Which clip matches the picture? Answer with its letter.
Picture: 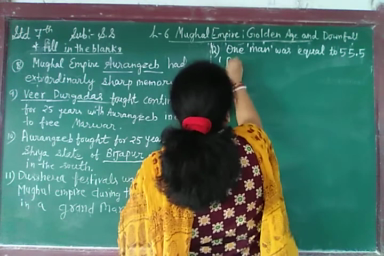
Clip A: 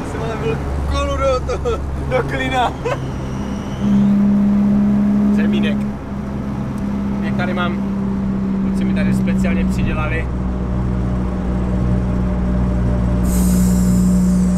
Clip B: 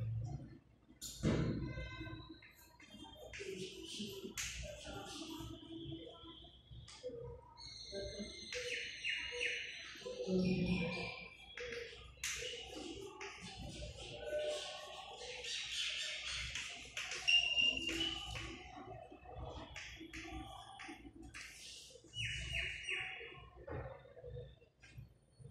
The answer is B